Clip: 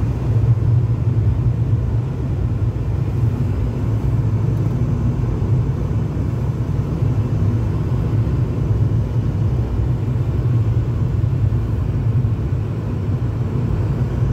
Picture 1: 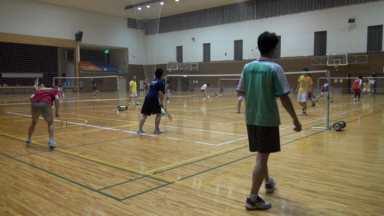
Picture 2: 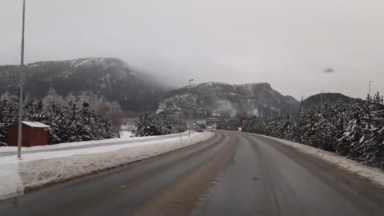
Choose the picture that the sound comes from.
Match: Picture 2